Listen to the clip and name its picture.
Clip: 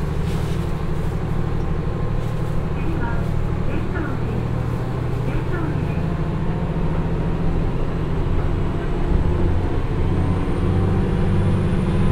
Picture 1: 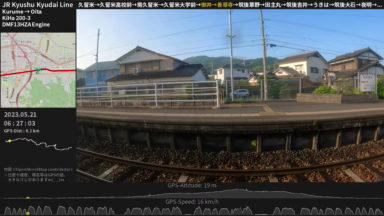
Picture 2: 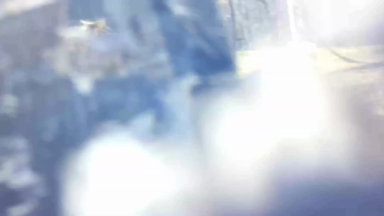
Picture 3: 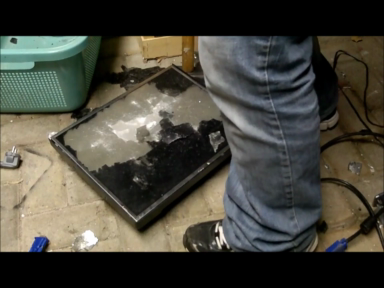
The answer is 1